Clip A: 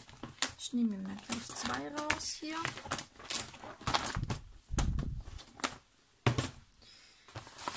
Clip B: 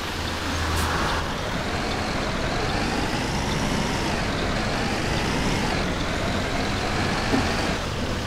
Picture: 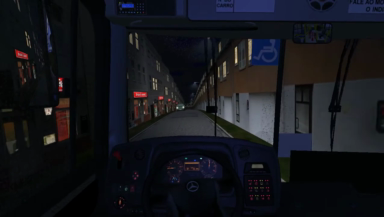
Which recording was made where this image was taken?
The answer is B